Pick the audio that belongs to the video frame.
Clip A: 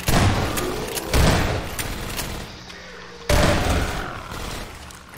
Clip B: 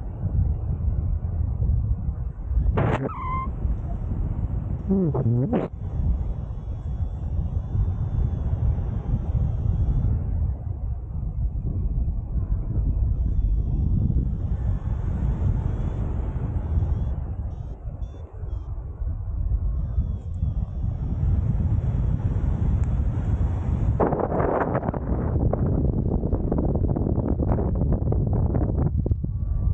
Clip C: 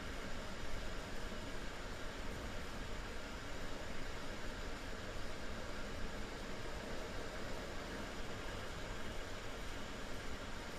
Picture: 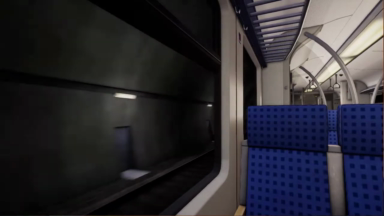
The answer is C